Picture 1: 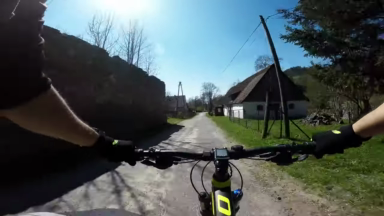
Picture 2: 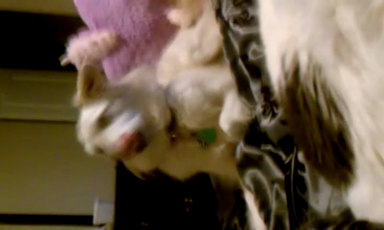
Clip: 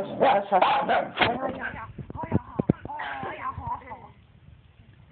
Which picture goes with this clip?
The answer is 2